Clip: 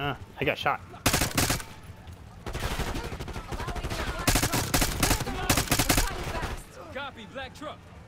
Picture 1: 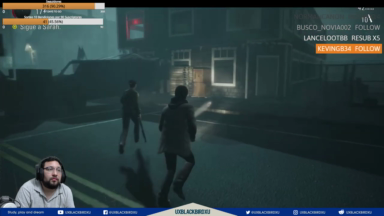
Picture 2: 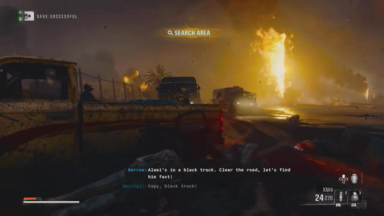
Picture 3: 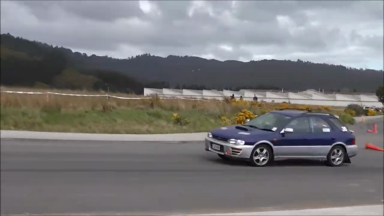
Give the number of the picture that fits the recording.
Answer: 2